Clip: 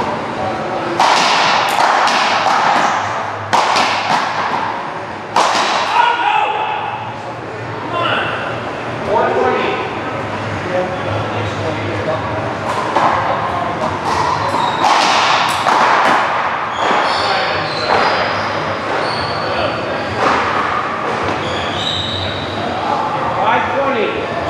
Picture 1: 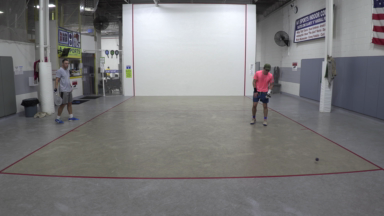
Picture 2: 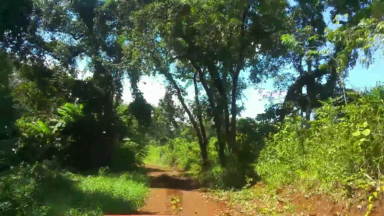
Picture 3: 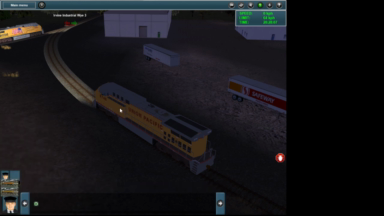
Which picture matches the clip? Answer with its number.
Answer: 1